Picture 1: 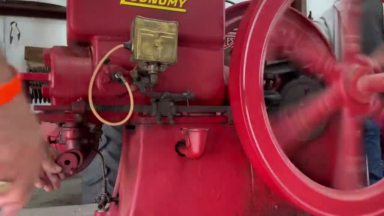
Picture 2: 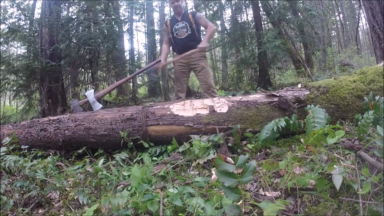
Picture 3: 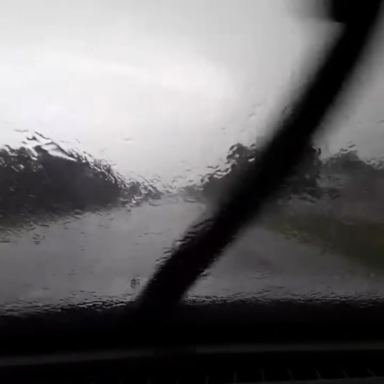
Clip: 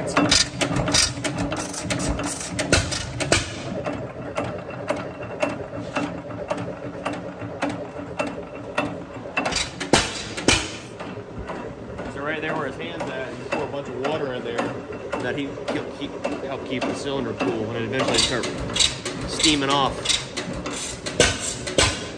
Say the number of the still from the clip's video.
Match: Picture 1